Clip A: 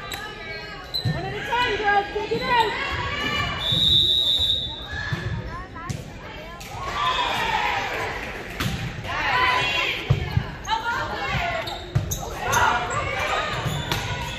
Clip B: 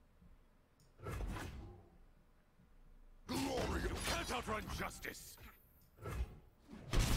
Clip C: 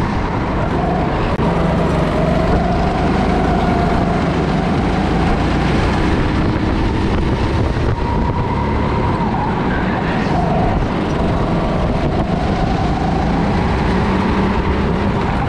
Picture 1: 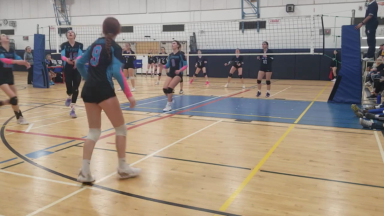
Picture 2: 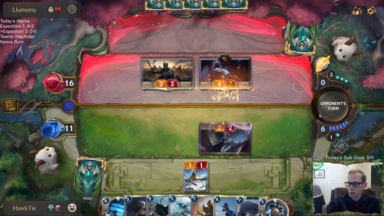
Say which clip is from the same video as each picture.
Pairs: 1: A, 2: B